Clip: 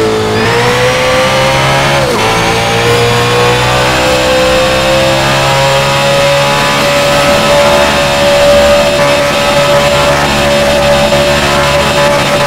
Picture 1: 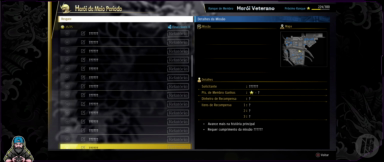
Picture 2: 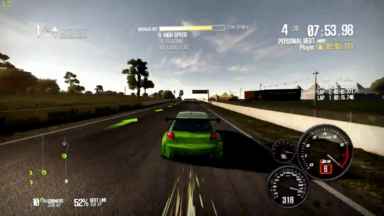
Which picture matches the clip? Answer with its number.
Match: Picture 2